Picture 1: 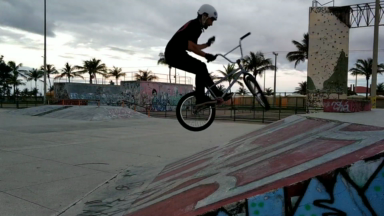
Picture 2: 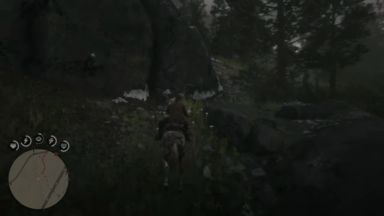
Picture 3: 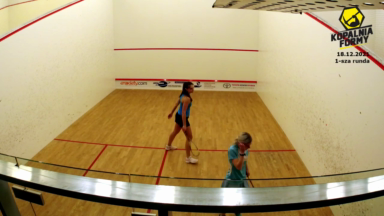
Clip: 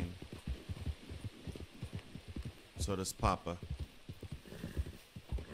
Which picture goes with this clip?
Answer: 2